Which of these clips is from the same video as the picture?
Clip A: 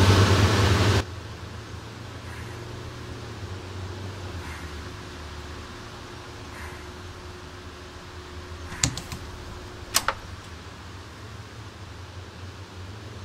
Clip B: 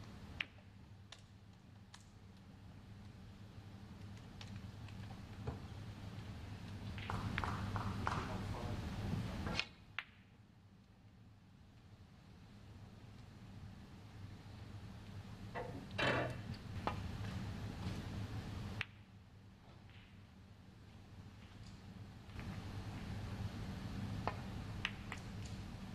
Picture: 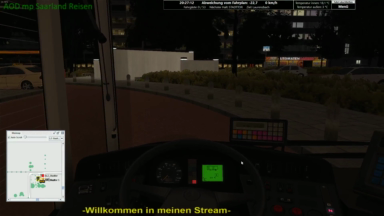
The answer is A